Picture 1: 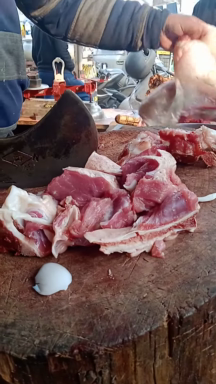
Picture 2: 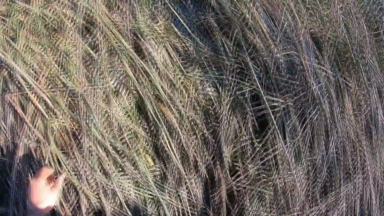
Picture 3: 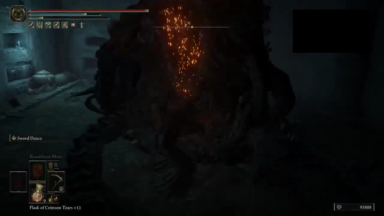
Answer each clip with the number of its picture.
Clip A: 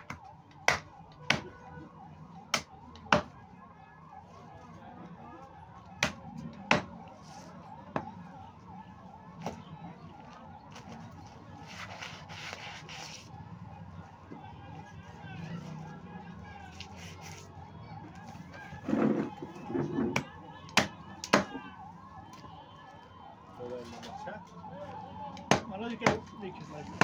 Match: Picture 1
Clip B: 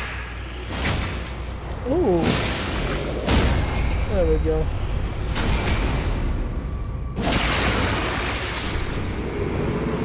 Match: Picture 3